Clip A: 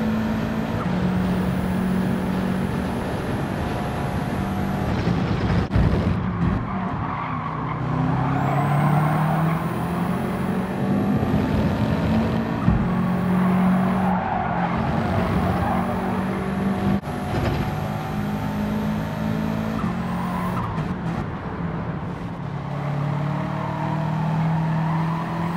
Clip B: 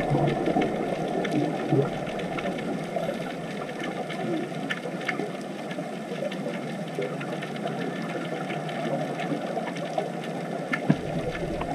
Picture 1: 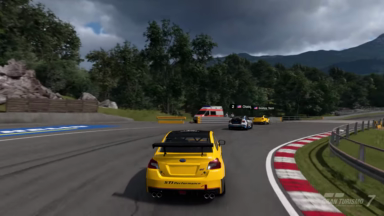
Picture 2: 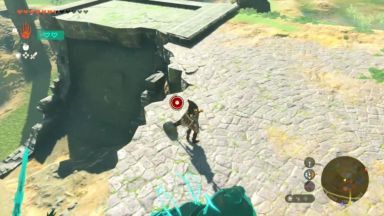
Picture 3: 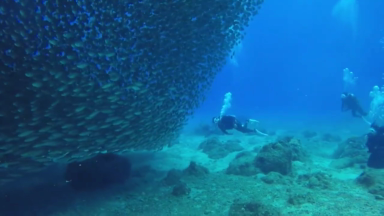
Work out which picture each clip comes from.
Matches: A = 1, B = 3